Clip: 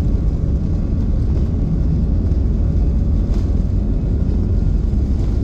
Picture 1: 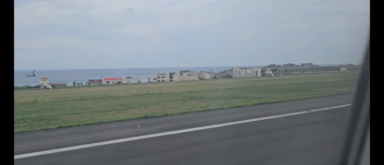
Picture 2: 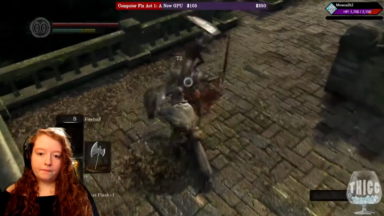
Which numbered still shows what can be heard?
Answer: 1